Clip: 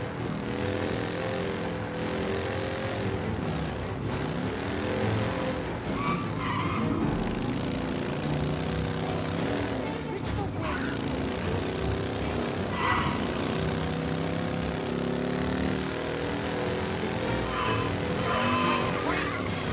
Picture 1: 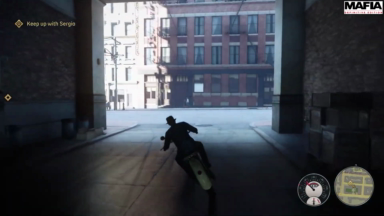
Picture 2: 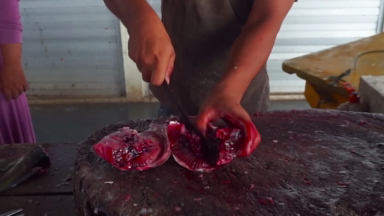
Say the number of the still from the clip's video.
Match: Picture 1